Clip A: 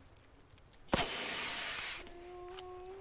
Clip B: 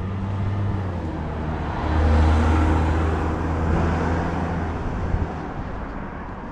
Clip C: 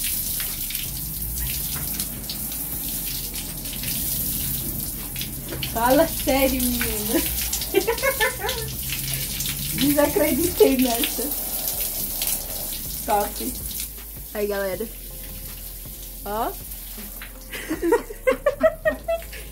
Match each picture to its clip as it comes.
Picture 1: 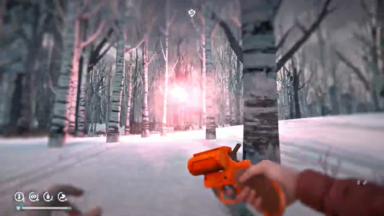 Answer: A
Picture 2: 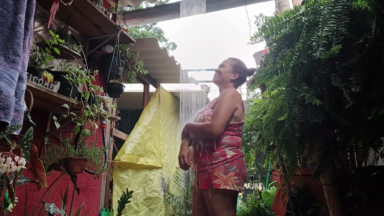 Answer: C